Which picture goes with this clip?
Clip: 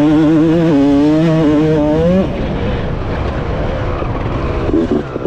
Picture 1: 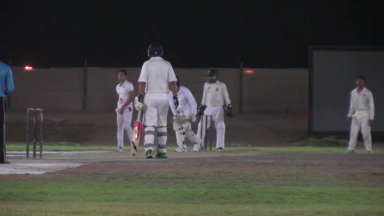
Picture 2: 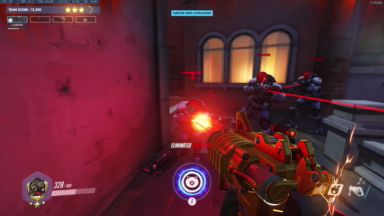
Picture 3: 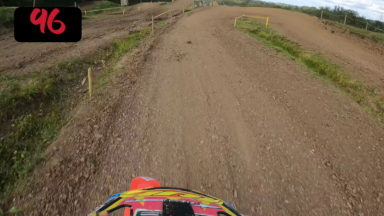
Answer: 3